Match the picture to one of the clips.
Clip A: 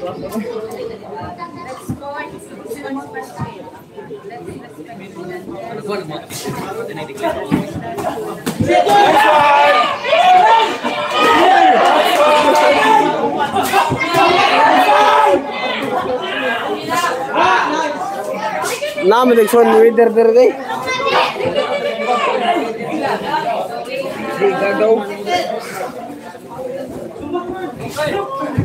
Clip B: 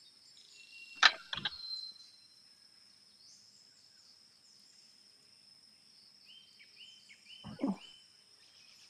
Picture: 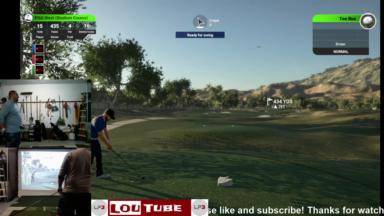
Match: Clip B